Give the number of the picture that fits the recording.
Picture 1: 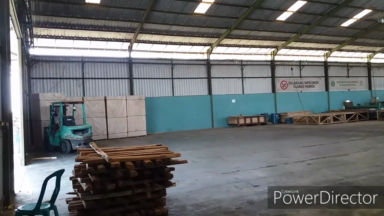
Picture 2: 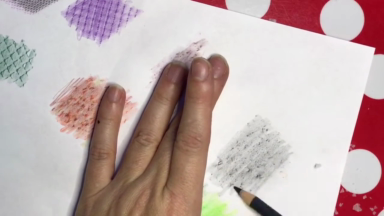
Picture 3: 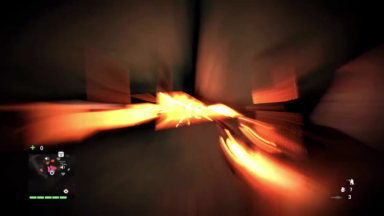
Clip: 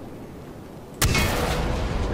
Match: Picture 3